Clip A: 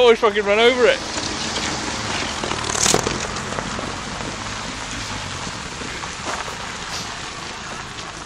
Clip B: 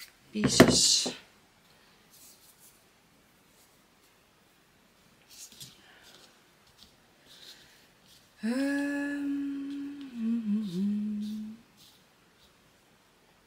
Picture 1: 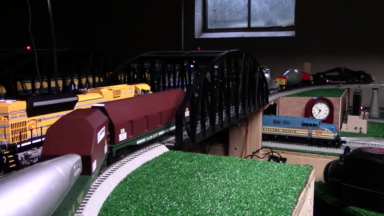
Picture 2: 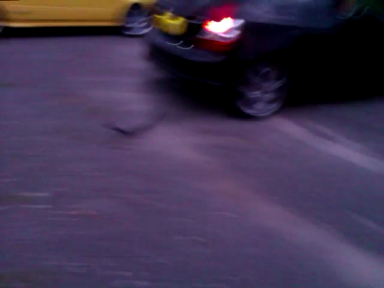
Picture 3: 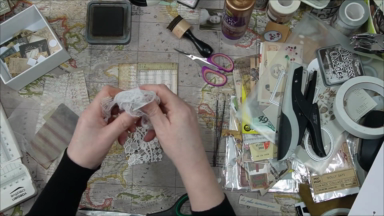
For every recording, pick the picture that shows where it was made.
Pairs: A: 2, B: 3